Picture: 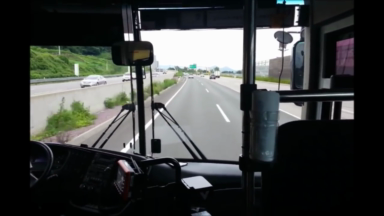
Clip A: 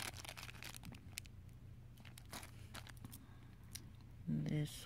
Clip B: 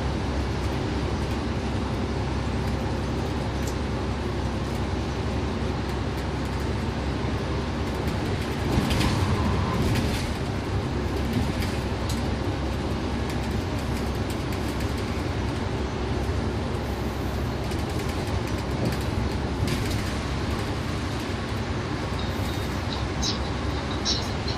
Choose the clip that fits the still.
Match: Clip B